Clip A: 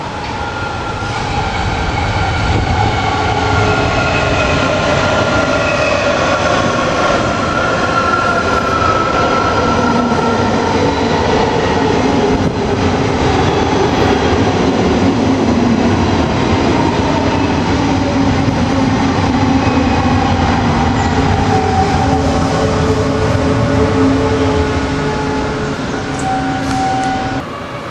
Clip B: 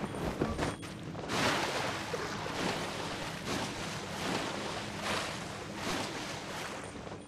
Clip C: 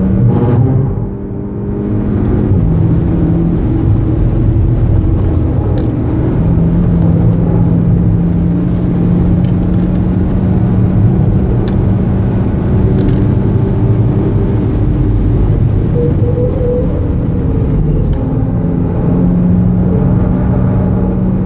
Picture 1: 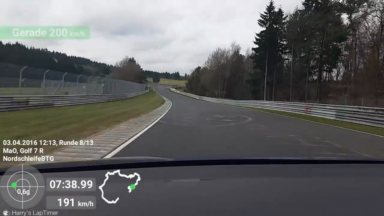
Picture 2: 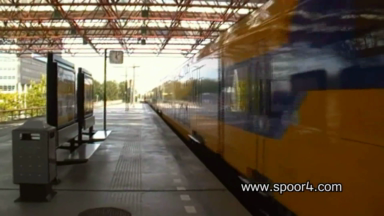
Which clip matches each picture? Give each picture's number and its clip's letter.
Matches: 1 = C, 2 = A